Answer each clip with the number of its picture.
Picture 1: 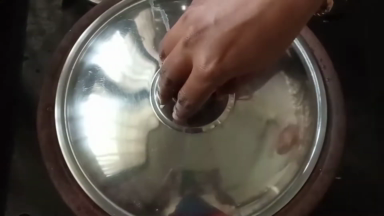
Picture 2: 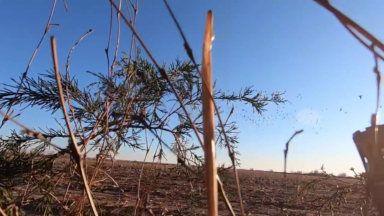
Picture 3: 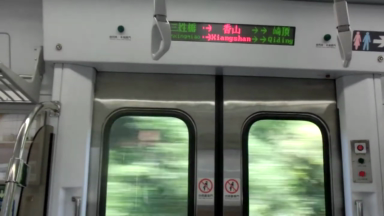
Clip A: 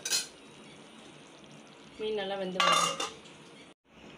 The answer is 1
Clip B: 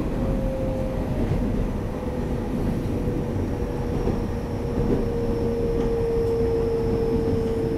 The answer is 3